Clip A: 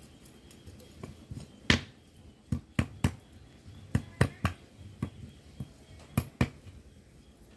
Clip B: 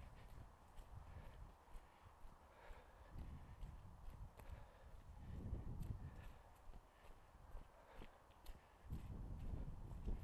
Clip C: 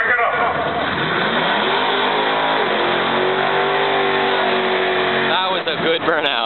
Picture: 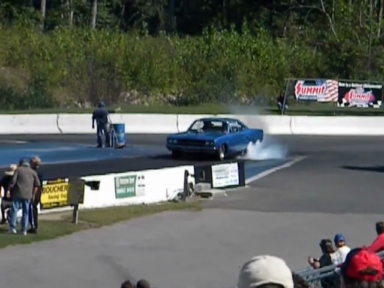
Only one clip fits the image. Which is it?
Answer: C